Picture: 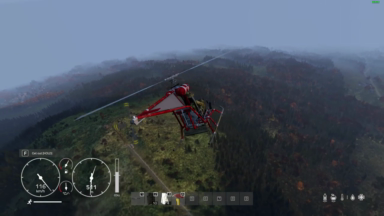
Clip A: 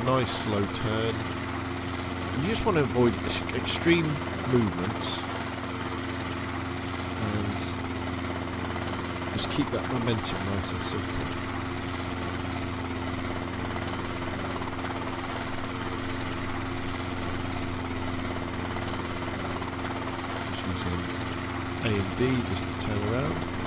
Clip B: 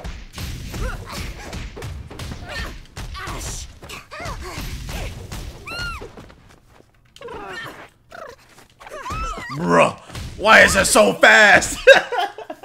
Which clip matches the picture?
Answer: A